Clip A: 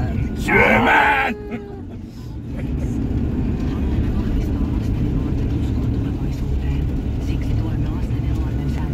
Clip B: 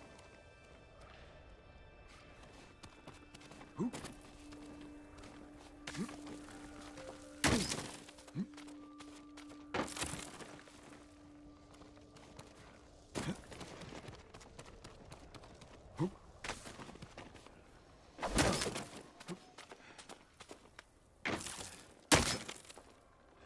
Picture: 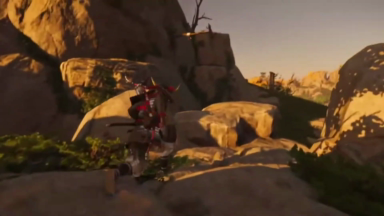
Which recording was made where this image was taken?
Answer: B